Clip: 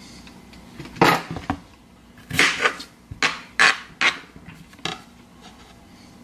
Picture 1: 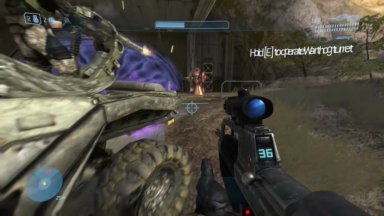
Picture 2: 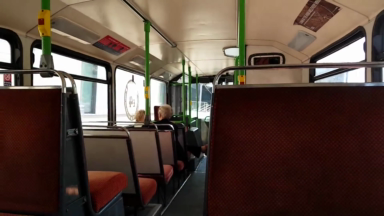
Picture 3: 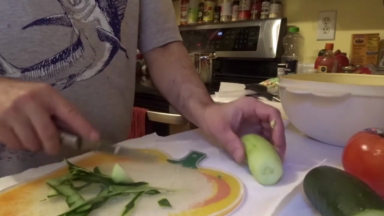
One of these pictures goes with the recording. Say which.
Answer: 3